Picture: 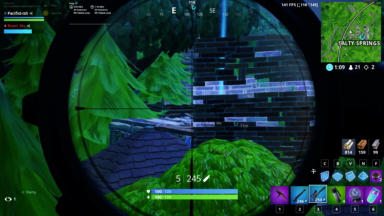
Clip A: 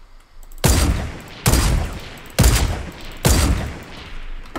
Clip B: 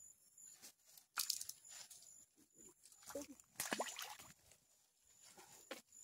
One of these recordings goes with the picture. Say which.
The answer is A